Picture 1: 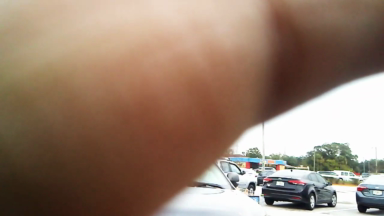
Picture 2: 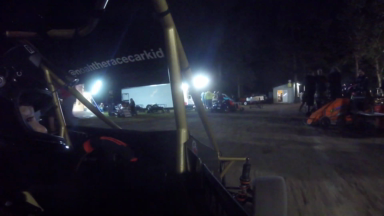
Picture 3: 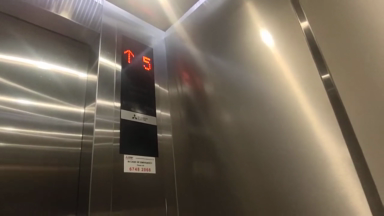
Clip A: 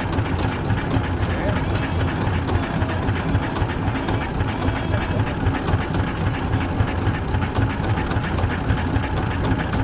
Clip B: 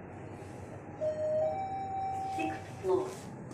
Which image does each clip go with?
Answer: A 2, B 3